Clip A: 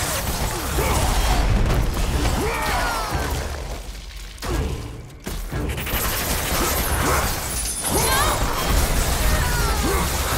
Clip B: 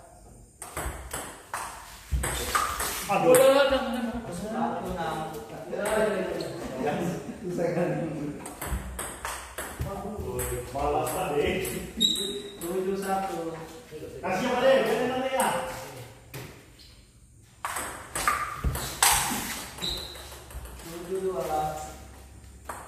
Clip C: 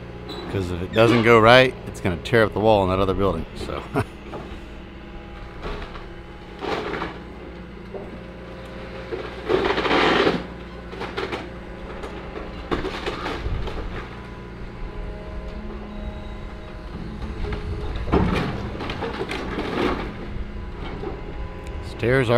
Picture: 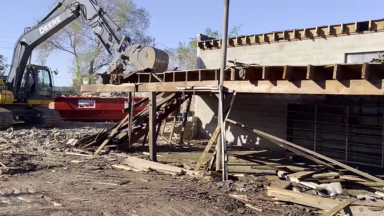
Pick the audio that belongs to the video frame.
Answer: C